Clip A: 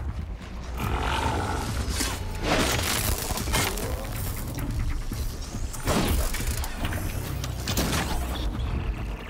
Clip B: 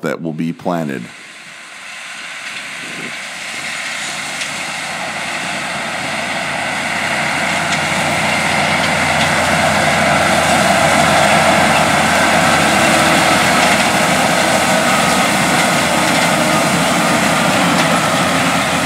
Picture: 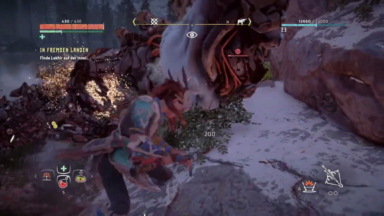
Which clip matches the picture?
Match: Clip A